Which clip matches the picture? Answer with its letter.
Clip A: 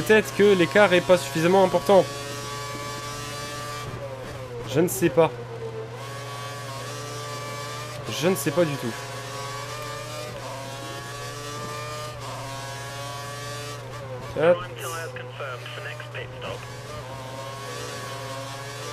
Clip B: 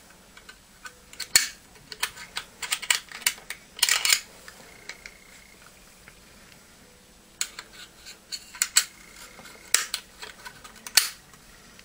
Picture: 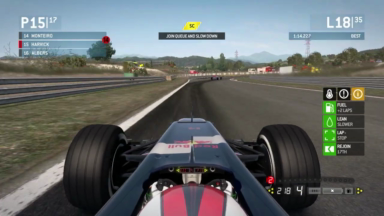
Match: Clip A